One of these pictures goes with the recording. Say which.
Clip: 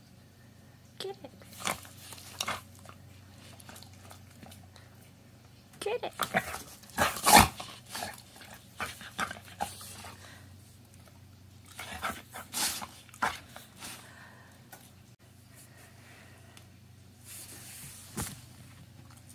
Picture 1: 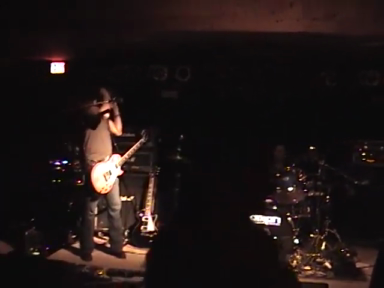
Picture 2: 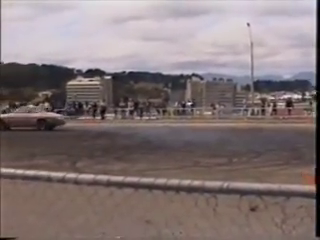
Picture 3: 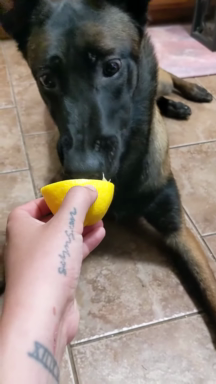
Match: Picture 3